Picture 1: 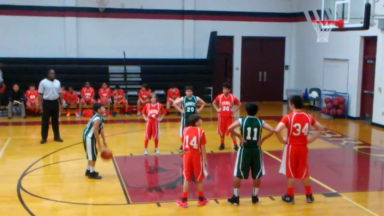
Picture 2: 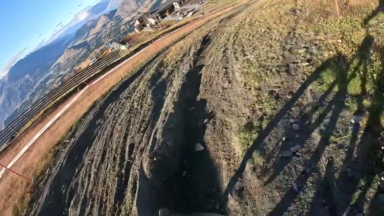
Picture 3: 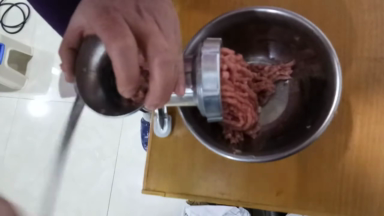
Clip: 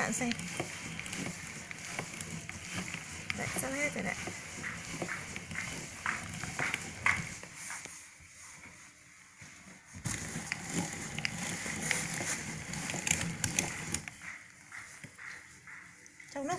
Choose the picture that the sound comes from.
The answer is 3